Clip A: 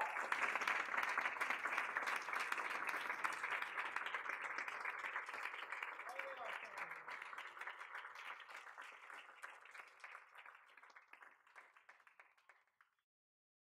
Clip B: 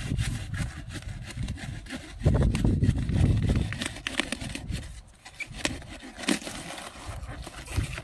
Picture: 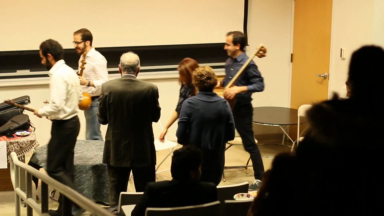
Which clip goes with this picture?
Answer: A